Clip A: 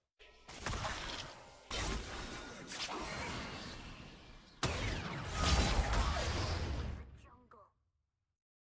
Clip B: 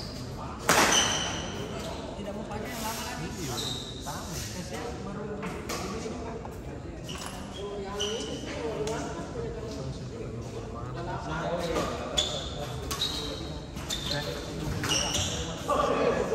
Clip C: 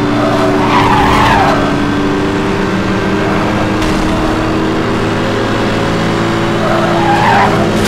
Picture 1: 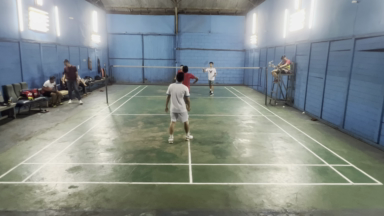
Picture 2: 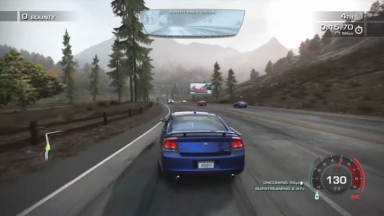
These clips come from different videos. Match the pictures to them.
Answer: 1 B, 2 C